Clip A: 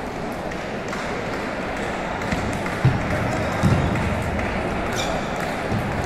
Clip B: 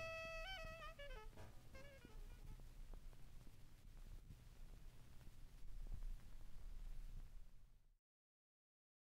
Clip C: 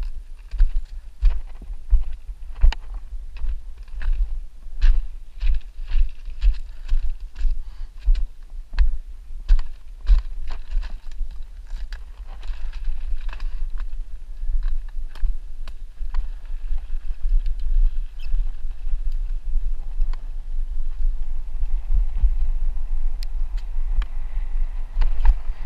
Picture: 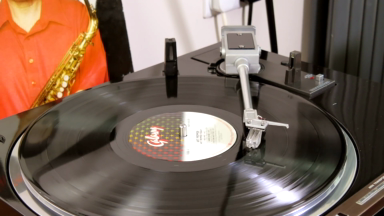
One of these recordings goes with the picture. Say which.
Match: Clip B